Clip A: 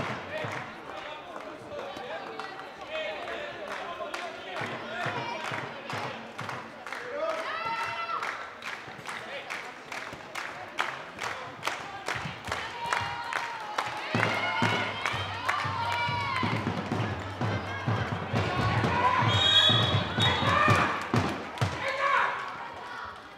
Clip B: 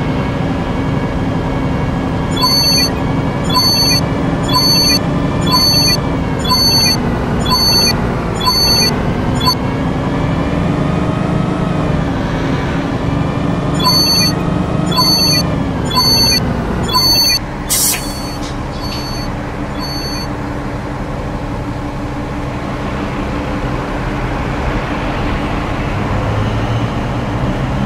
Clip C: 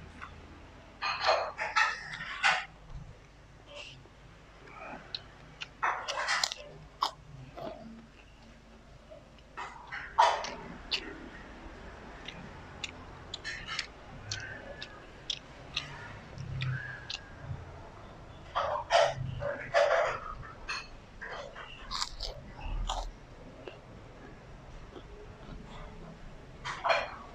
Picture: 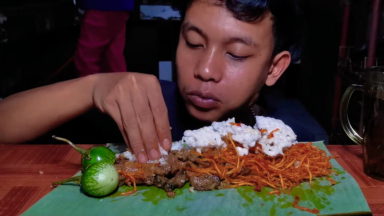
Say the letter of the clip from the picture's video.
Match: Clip C